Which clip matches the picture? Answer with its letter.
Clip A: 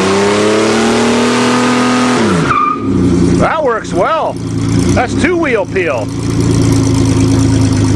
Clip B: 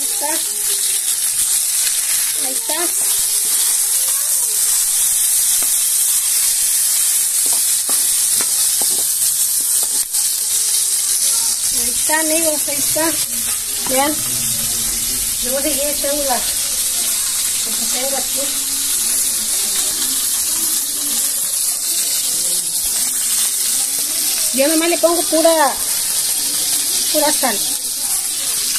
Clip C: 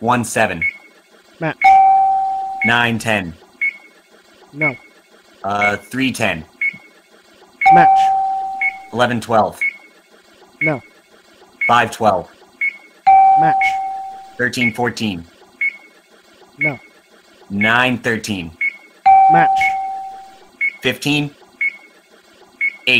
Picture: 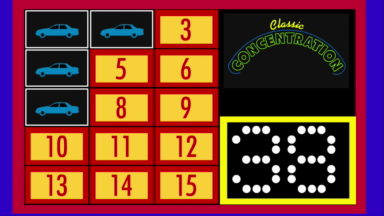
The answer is C